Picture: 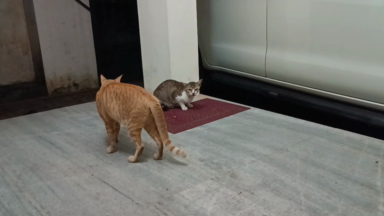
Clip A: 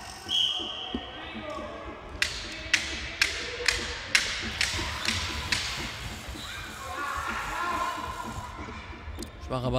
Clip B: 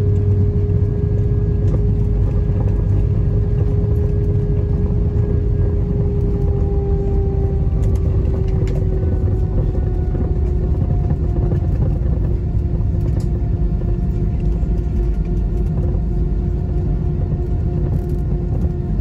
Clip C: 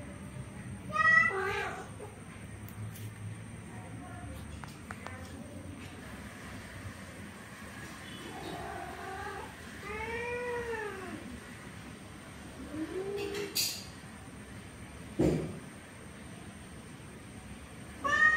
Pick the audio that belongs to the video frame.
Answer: C